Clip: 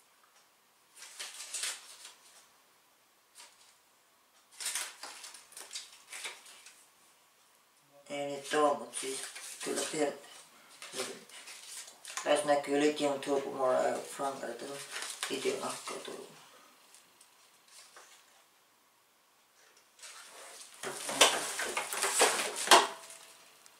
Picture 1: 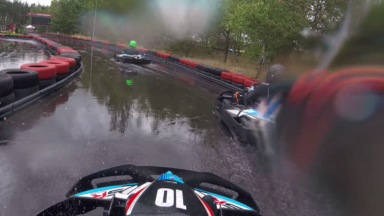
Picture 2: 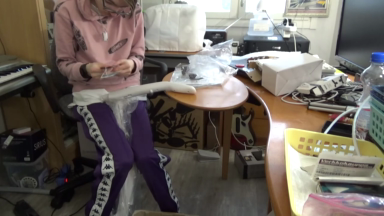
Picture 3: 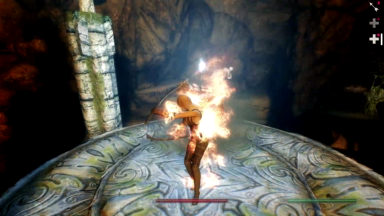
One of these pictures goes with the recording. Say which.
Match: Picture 2